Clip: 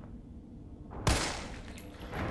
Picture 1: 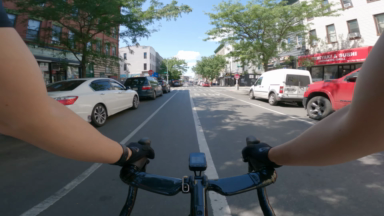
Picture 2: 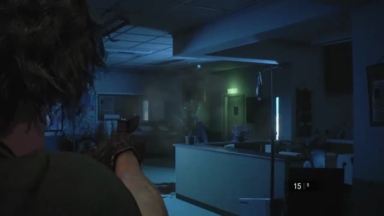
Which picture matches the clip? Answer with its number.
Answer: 2